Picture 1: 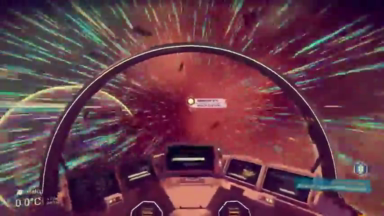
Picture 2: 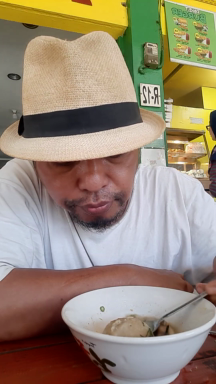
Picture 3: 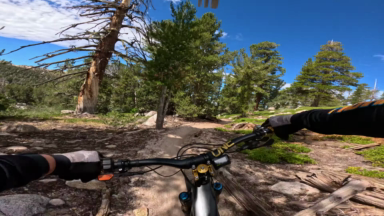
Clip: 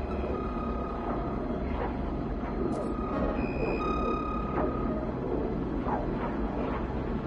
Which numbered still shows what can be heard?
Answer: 1